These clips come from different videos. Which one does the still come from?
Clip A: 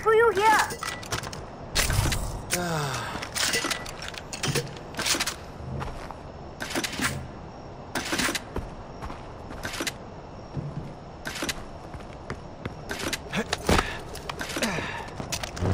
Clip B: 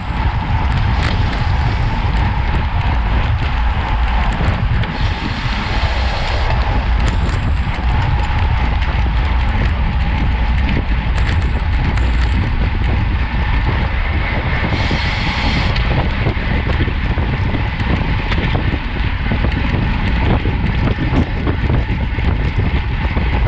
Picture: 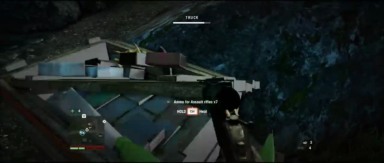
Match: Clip A